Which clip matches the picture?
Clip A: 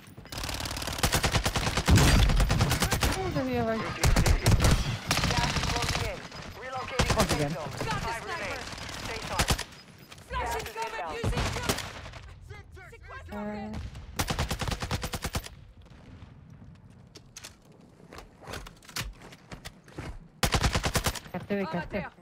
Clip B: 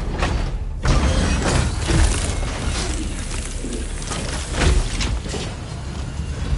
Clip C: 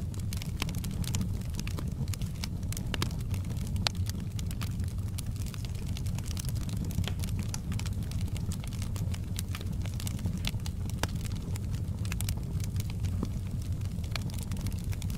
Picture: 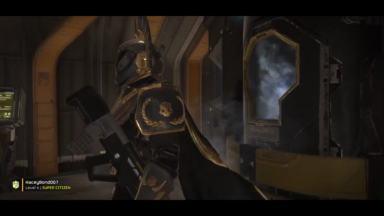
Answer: B